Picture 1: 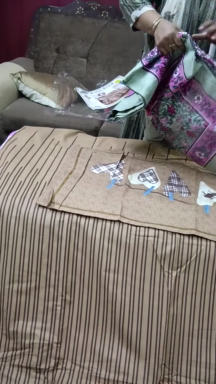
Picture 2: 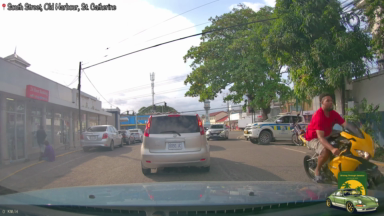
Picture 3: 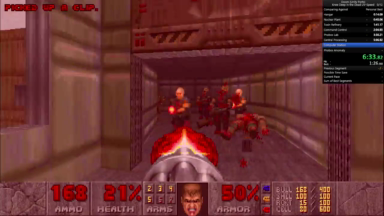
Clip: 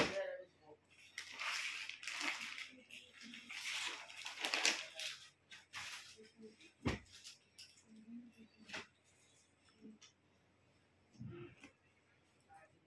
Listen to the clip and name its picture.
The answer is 1